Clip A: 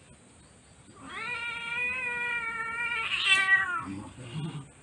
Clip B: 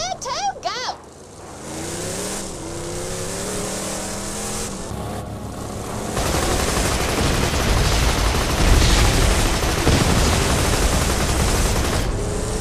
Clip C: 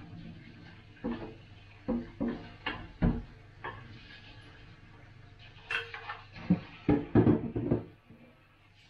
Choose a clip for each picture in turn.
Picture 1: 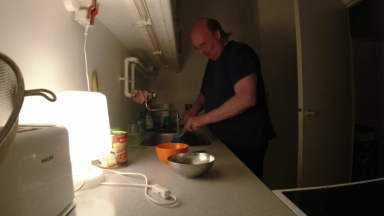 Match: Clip C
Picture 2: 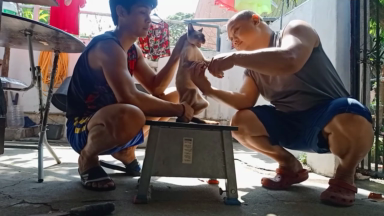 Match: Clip A